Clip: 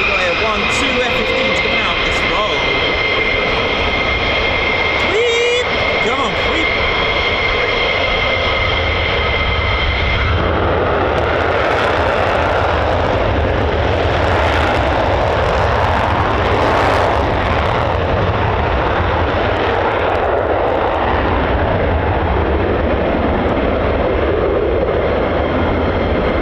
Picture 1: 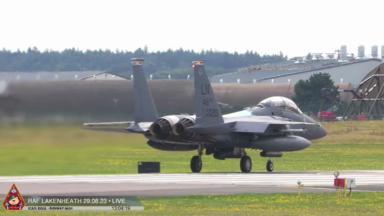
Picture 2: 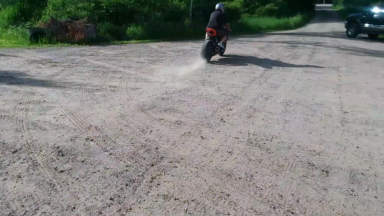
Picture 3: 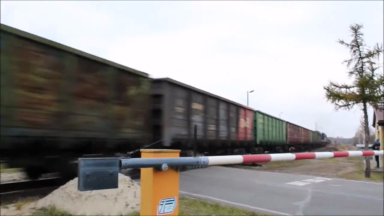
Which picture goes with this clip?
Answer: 1